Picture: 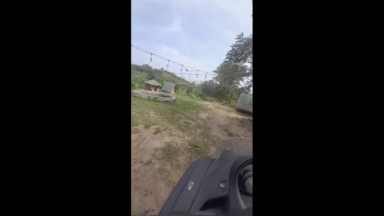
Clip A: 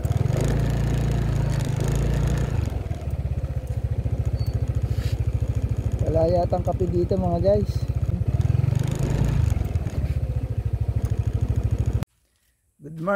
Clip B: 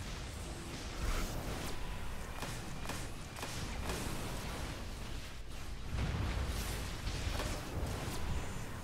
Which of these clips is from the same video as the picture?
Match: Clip A